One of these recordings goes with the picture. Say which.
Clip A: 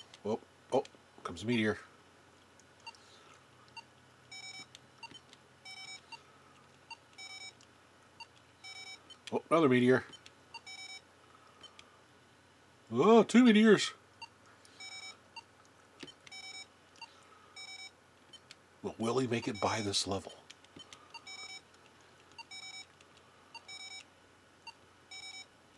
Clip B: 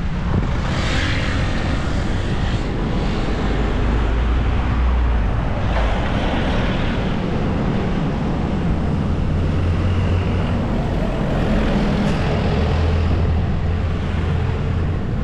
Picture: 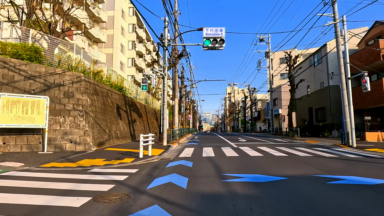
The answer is B